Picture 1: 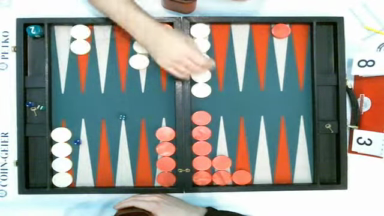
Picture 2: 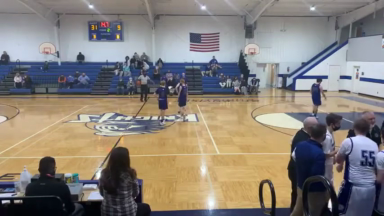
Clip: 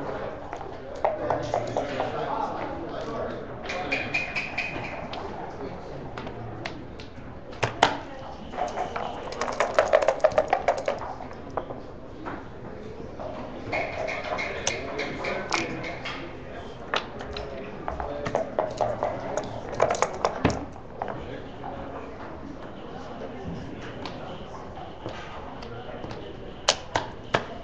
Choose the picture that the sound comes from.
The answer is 1